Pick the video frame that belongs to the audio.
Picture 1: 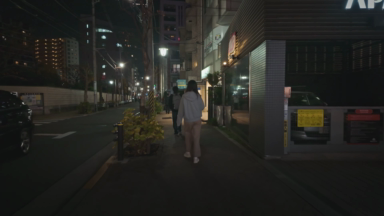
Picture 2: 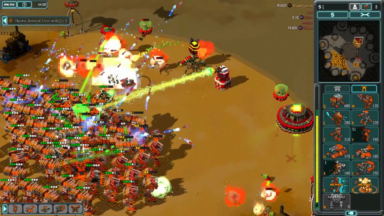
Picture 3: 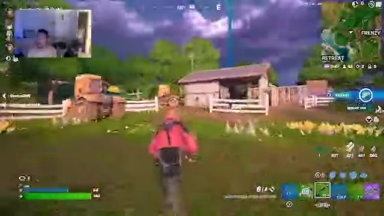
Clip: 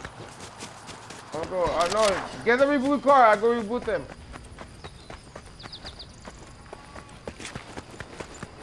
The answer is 3